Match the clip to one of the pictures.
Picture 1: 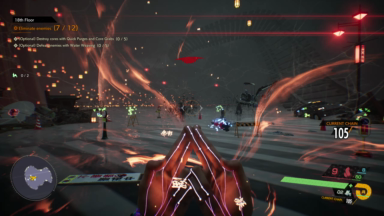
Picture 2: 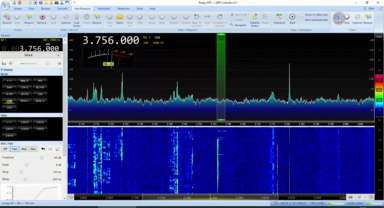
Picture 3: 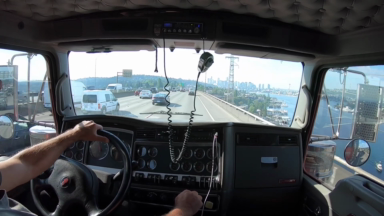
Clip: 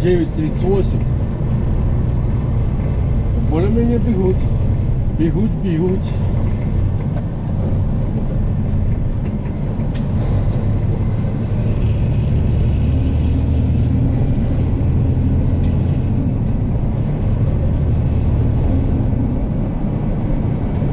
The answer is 3